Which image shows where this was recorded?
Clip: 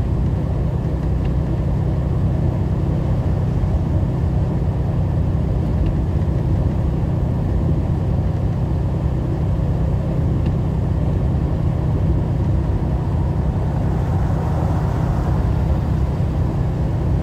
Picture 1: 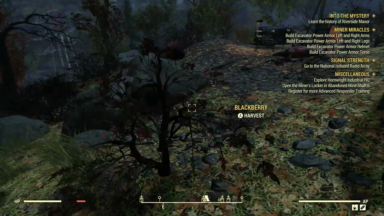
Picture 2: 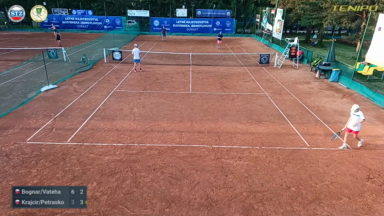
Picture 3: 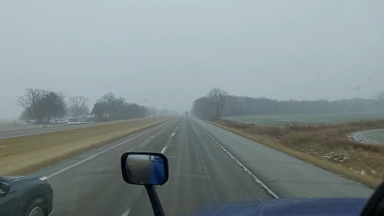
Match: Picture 3